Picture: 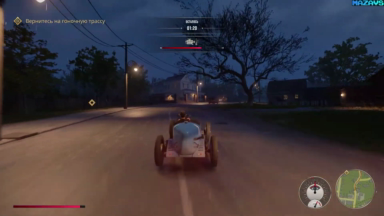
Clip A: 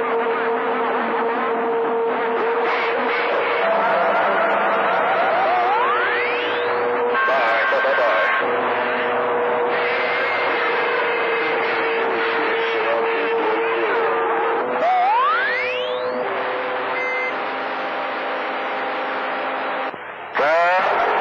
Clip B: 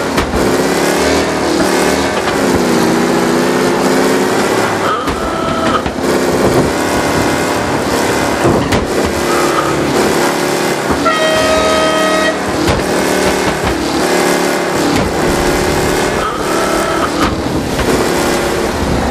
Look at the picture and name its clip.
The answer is B